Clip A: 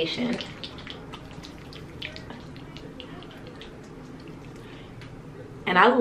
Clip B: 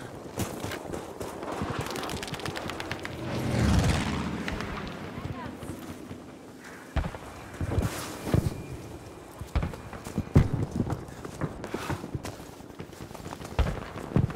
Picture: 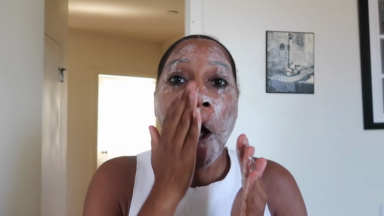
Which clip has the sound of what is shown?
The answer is A